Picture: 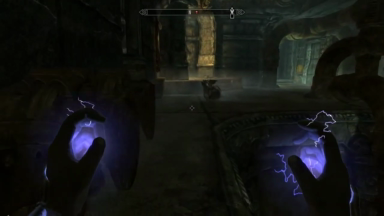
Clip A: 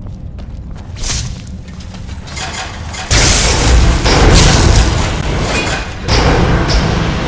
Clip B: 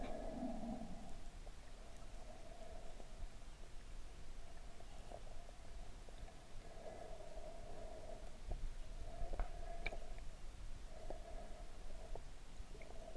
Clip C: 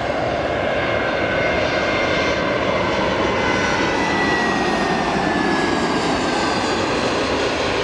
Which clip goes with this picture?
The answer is A